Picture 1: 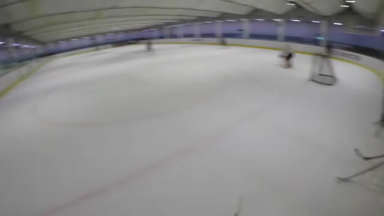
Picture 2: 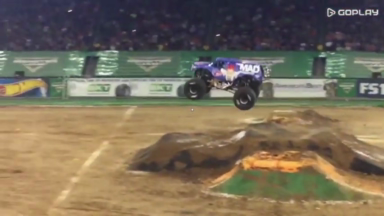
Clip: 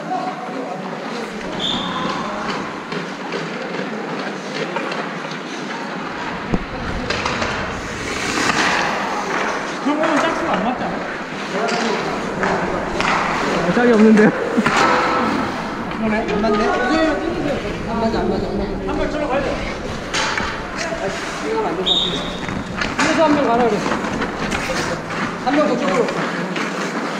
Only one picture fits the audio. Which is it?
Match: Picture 1